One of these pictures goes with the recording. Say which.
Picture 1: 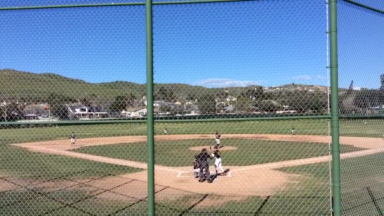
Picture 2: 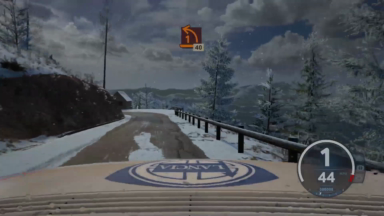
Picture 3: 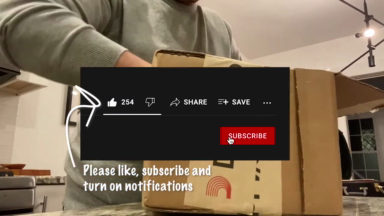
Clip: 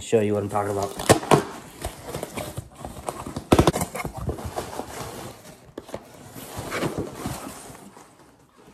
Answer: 3